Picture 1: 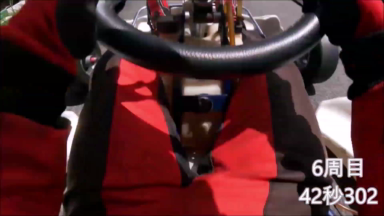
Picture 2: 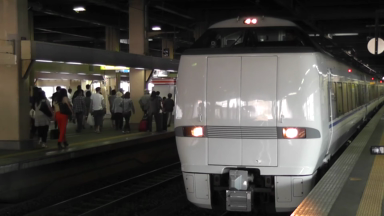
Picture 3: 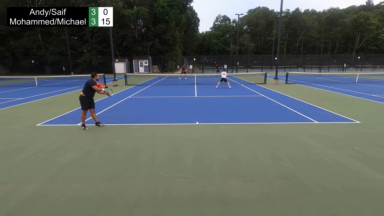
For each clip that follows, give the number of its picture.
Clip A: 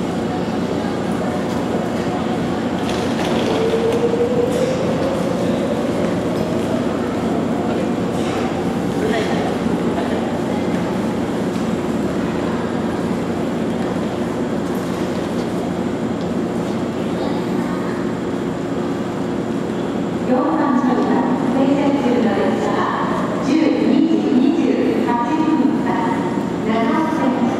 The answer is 2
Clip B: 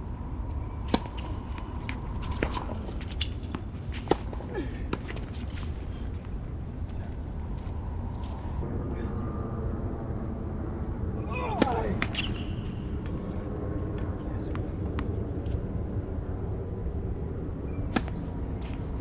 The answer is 3